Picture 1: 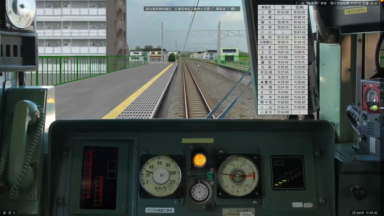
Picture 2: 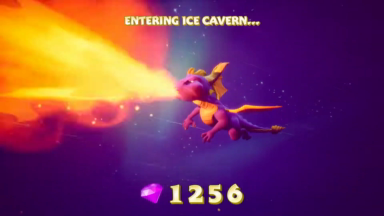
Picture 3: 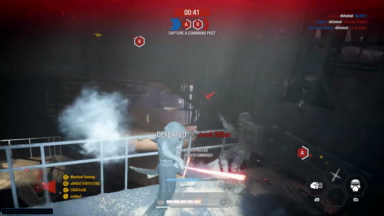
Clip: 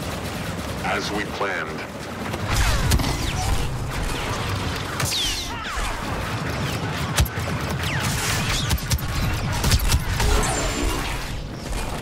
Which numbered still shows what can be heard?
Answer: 3